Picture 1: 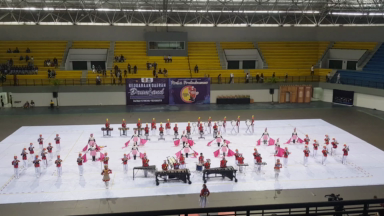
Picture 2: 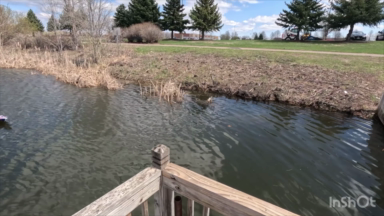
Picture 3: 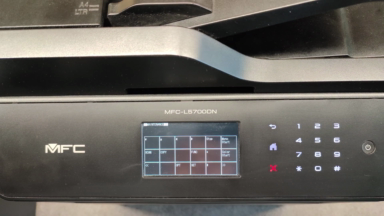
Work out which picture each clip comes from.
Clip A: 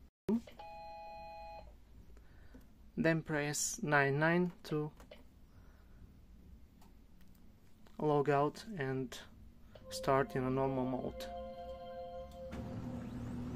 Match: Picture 3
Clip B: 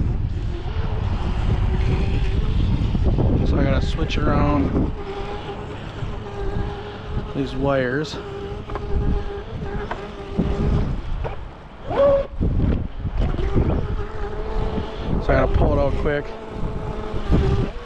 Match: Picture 2